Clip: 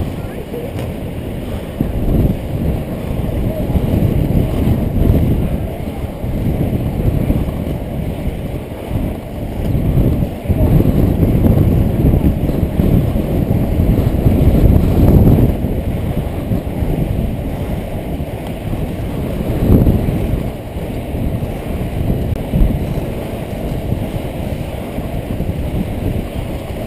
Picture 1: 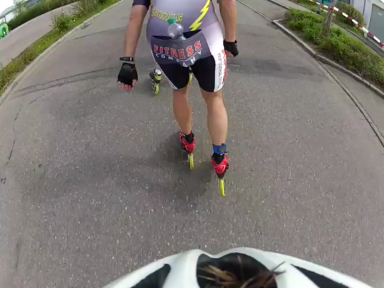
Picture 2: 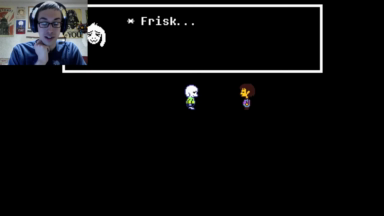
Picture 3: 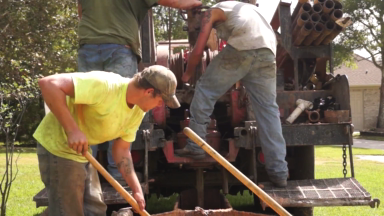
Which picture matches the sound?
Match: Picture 1